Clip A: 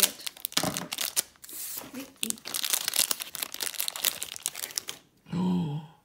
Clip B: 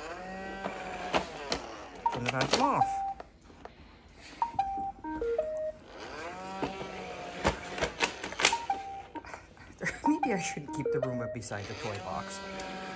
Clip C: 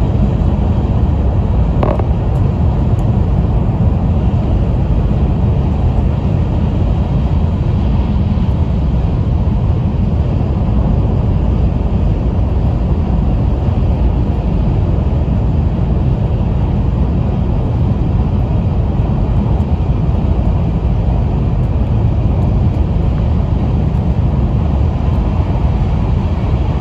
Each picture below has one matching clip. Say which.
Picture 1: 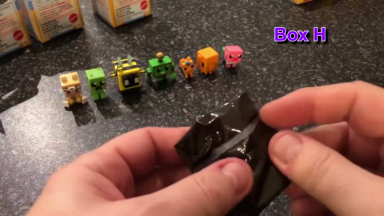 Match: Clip A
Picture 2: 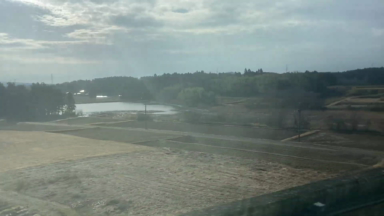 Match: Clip C